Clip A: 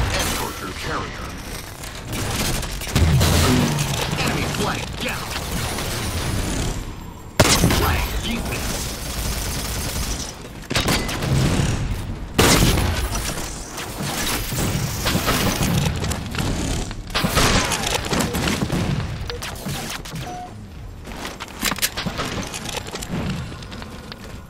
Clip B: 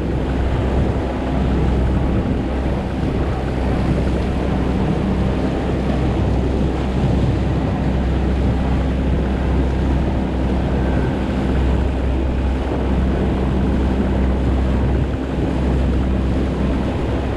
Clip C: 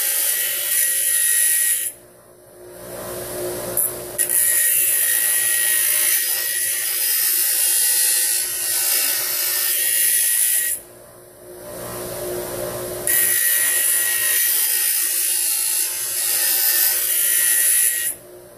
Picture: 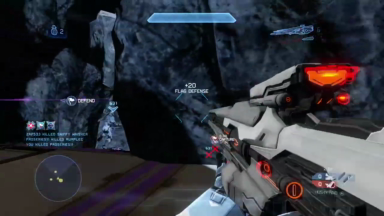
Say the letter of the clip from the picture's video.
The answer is A